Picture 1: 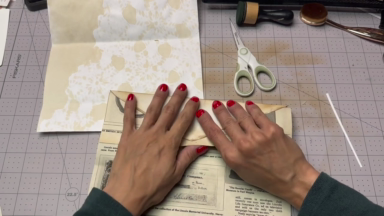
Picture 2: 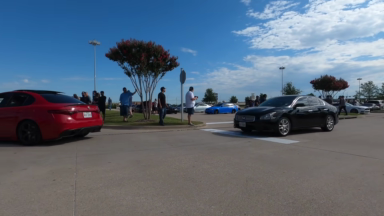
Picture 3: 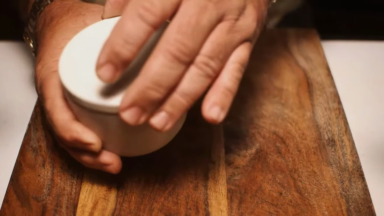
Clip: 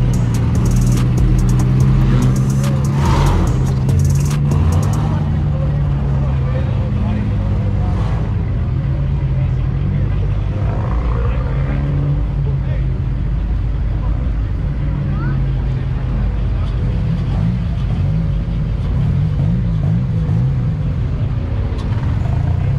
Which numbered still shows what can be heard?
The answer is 2